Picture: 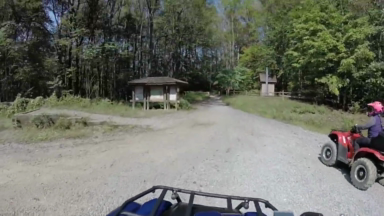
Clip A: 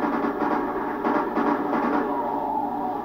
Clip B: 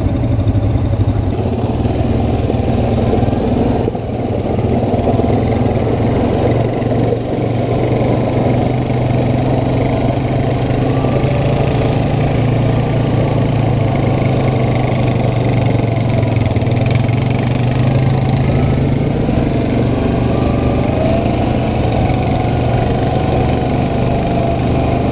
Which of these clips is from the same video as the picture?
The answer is B